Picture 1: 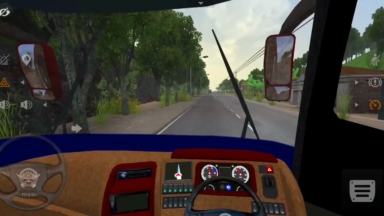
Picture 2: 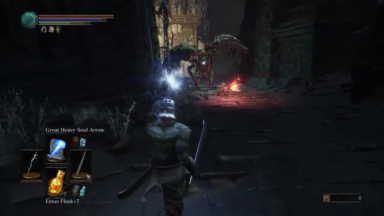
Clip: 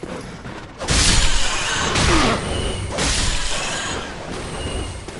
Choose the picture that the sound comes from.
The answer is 2